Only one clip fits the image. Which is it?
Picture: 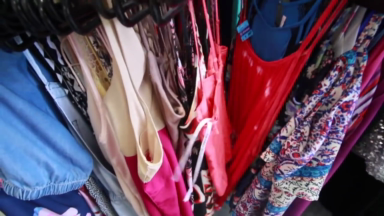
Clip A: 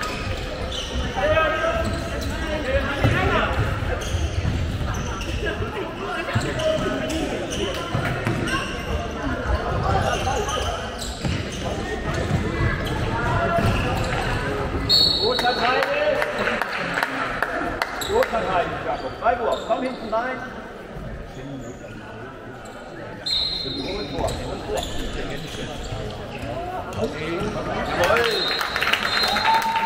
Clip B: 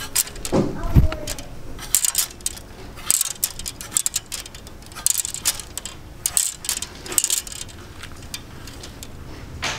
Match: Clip B